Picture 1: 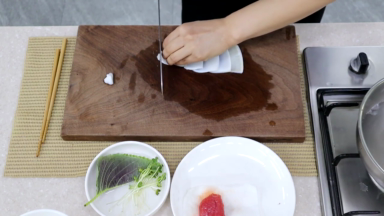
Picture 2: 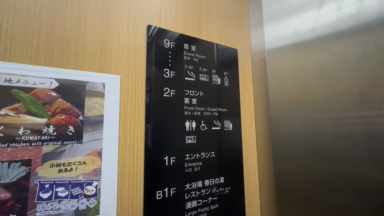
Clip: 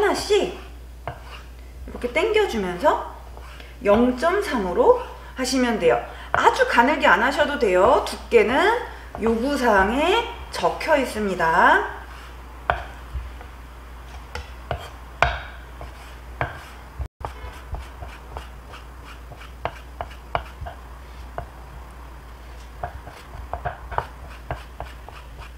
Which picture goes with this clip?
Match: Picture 1